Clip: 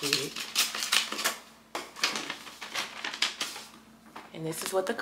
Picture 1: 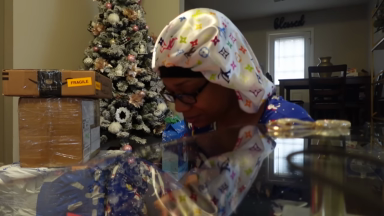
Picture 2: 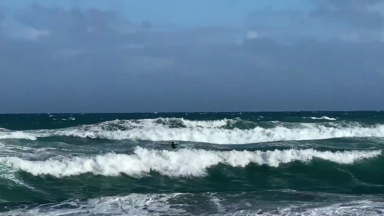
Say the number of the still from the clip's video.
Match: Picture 1